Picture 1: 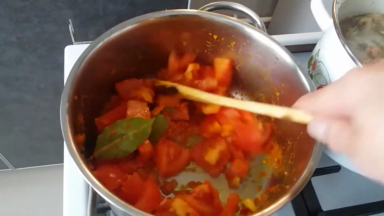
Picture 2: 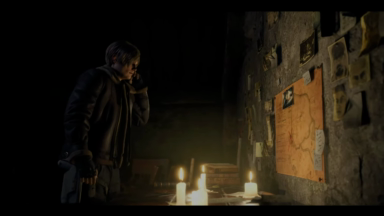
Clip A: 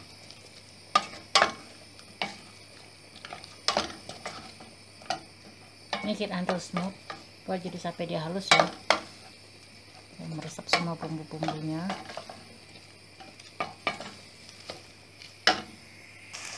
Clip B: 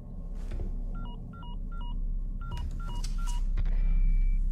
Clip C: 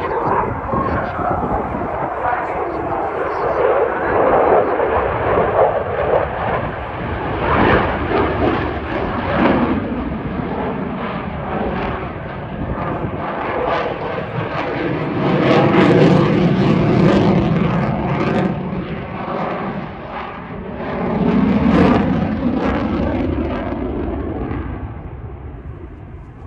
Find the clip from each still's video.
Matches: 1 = A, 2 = B